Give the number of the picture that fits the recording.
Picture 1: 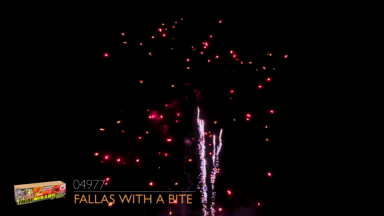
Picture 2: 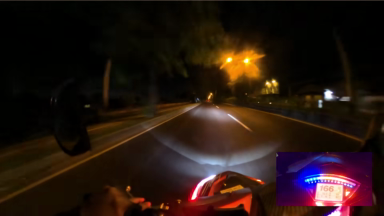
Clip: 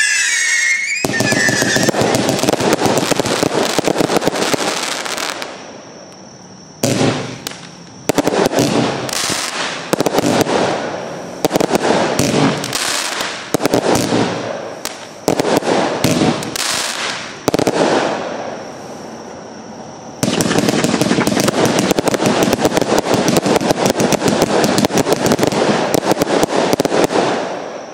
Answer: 1